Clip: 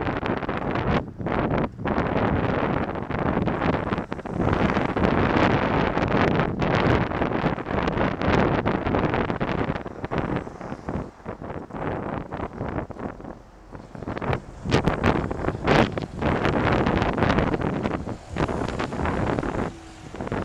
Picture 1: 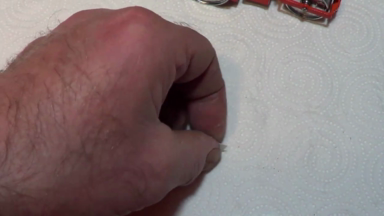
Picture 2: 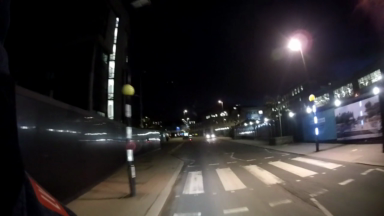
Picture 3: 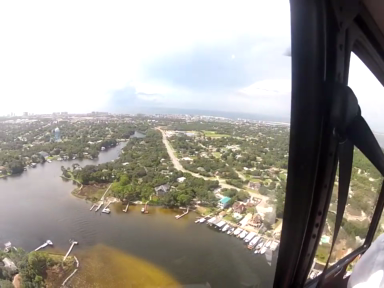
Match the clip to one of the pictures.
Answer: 2